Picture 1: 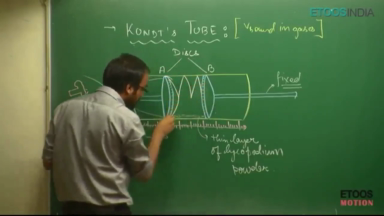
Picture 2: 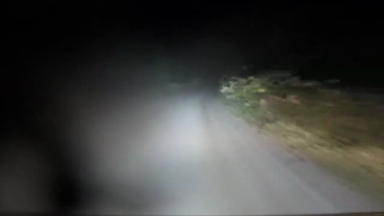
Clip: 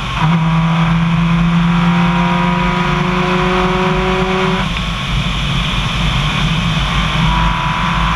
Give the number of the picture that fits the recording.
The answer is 2